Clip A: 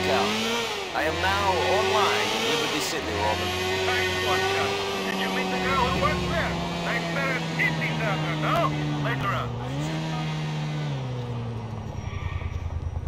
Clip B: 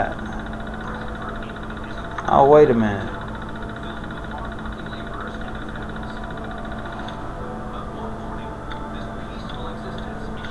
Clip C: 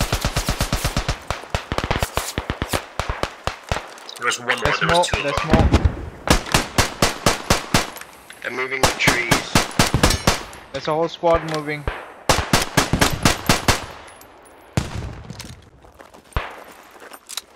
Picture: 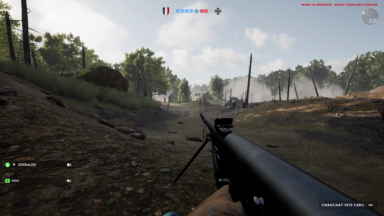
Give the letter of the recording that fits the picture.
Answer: C